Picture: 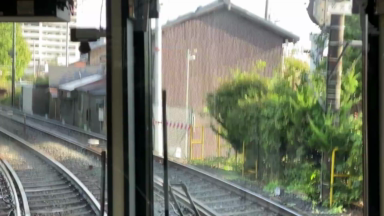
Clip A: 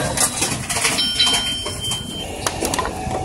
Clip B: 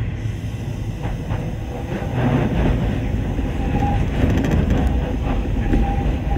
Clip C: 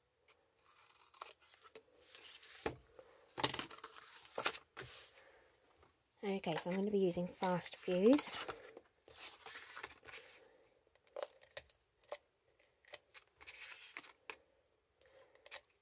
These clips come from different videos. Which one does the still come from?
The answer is B